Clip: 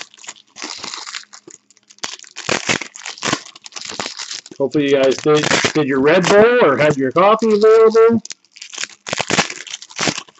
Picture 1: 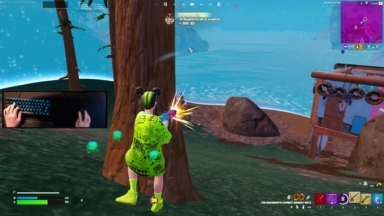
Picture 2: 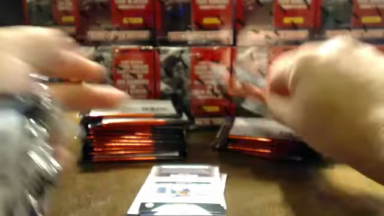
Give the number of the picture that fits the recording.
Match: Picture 2